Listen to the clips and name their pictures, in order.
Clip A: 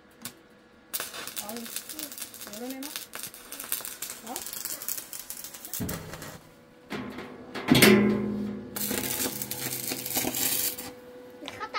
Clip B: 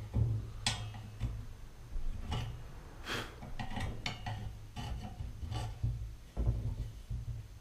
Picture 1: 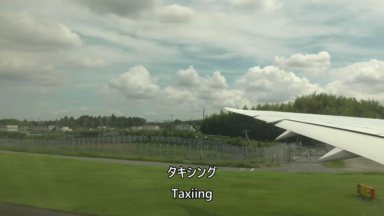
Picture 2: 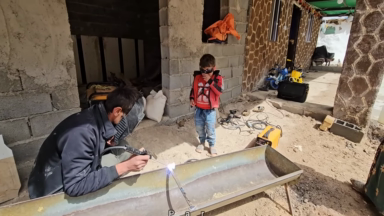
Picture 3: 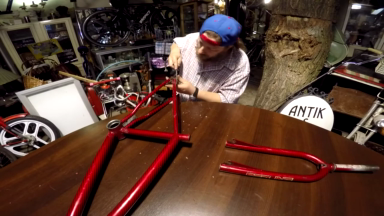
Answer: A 2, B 3